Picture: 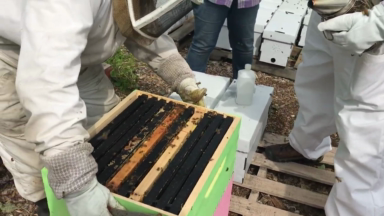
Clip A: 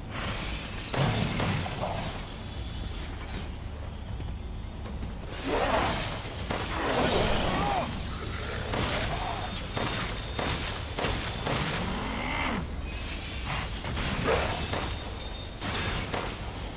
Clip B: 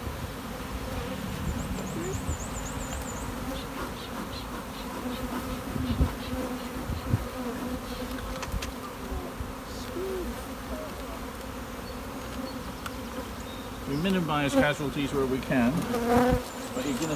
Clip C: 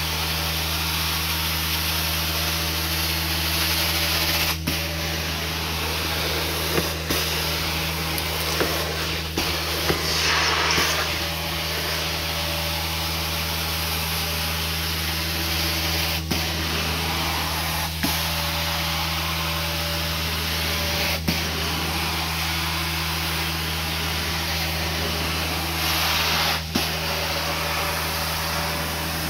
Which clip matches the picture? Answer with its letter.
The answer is B